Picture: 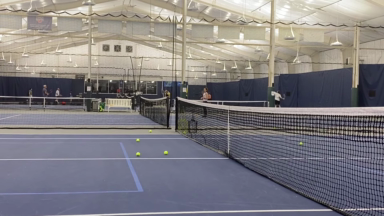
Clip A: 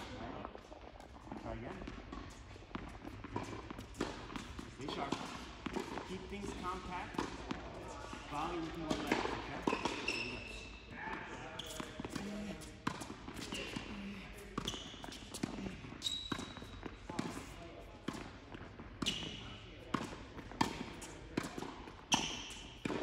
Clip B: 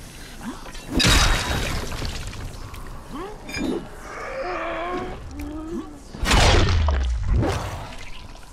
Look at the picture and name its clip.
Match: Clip A